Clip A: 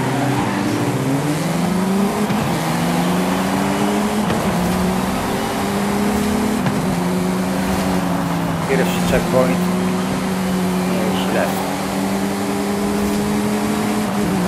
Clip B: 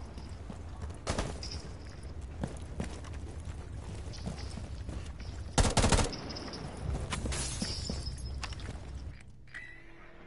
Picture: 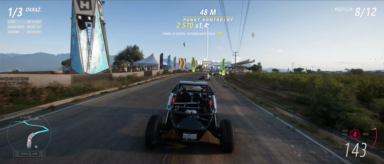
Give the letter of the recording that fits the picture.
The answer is A